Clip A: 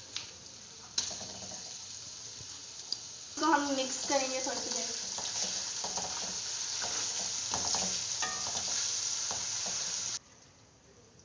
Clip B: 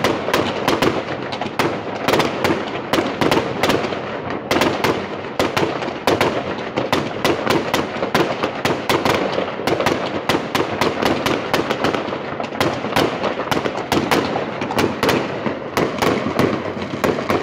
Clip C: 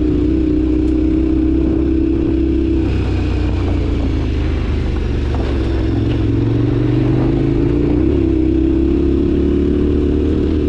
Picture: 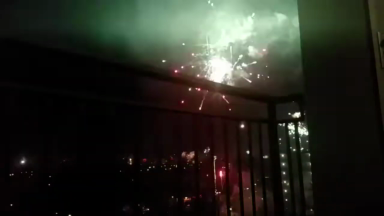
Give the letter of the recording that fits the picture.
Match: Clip B